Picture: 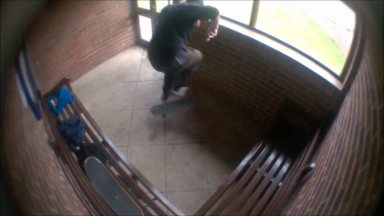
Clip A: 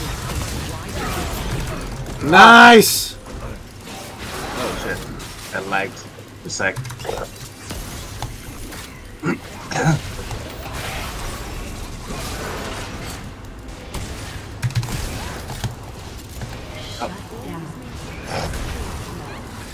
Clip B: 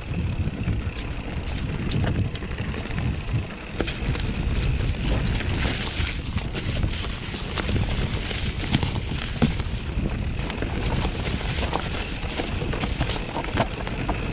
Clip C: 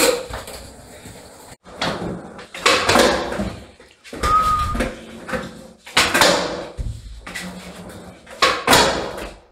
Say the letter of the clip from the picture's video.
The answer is C